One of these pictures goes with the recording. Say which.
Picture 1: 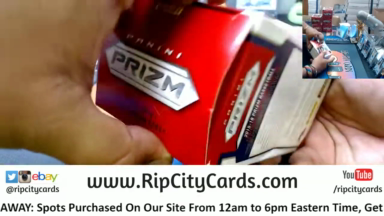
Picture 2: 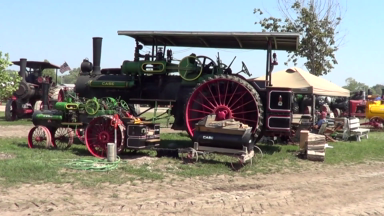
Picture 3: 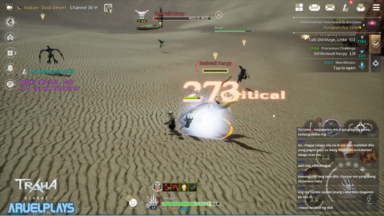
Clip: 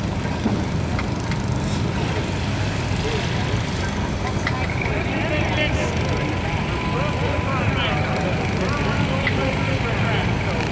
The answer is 2